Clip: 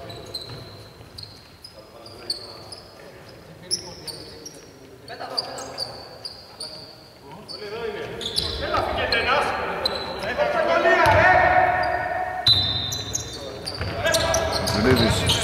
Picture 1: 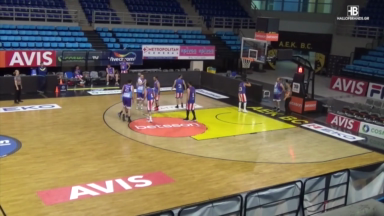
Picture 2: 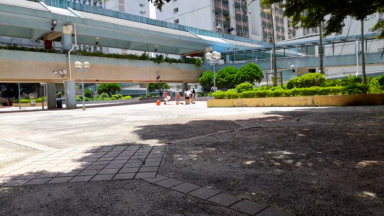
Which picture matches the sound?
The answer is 1